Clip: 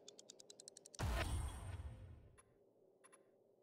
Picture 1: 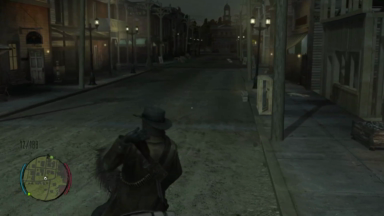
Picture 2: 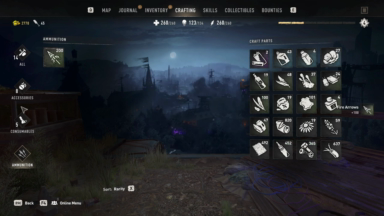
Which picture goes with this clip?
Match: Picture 2